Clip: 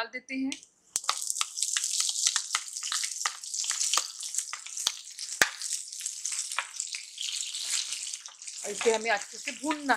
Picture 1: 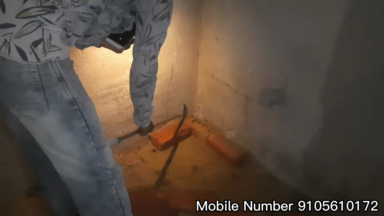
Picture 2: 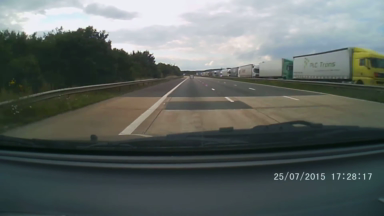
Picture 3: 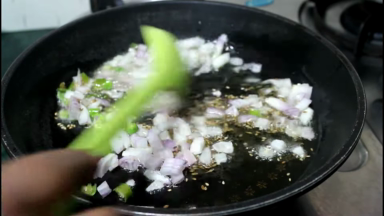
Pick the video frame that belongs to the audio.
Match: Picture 3